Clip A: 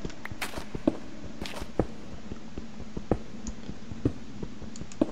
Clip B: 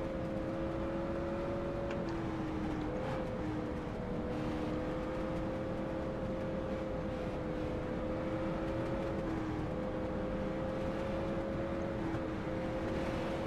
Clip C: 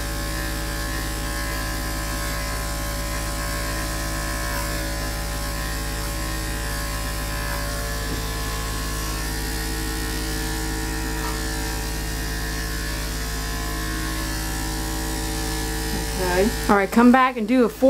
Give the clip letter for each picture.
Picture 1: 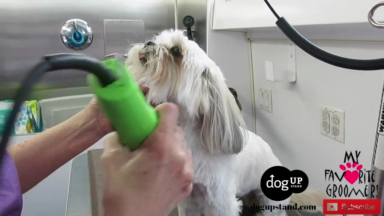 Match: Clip C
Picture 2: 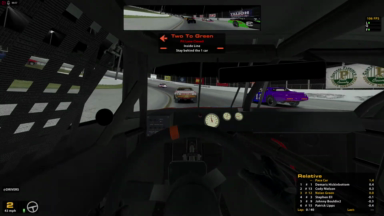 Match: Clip B